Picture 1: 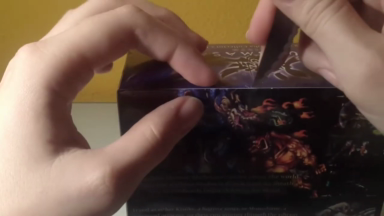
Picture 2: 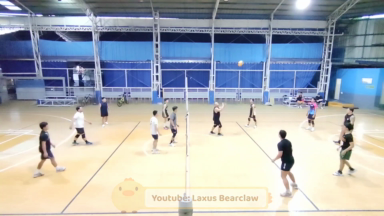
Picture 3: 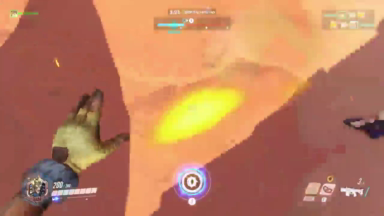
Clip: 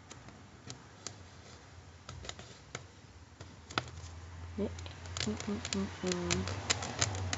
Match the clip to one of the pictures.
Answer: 1